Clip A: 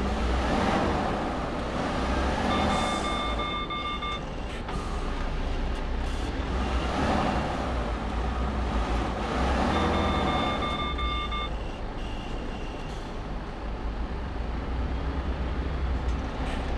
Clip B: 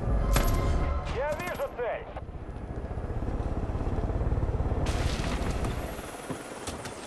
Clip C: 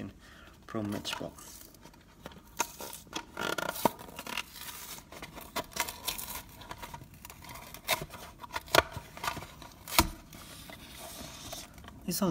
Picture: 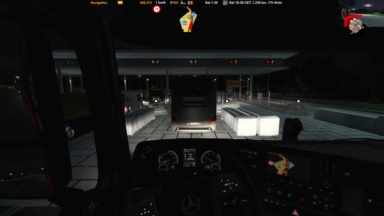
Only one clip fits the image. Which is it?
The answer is A